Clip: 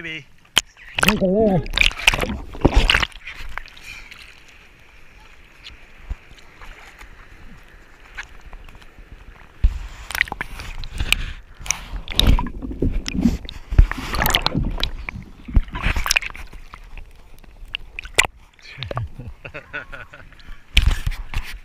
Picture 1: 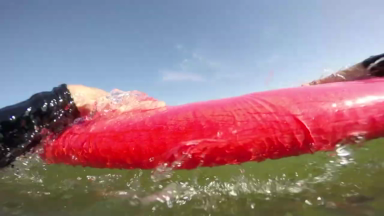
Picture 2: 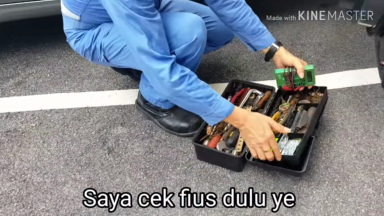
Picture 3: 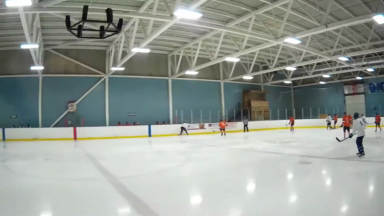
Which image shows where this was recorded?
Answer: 1